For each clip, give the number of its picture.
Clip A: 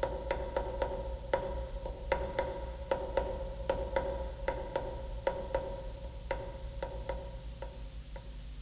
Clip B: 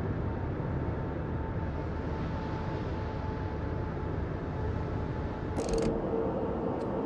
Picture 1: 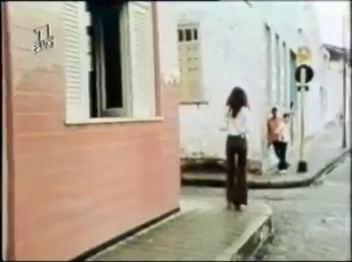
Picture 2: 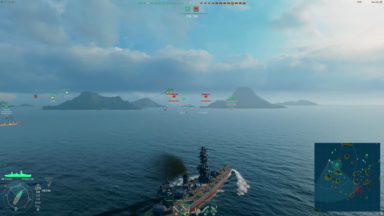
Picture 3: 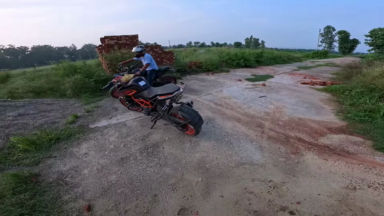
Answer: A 1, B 2